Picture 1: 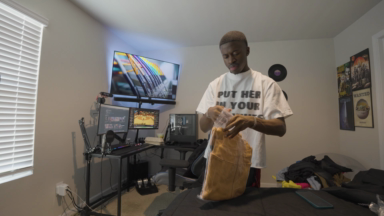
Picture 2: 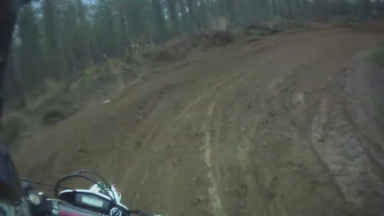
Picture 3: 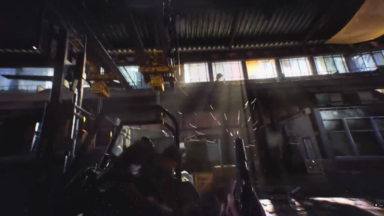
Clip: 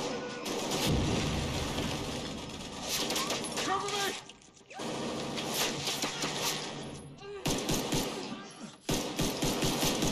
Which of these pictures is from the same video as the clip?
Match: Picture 3